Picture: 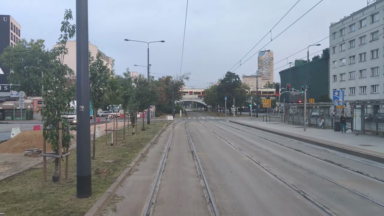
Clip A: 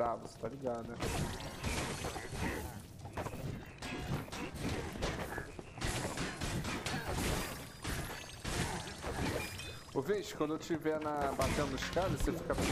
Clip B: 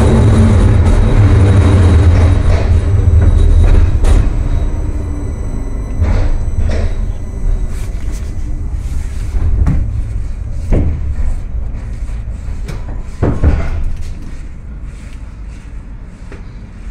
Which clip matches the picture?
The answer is B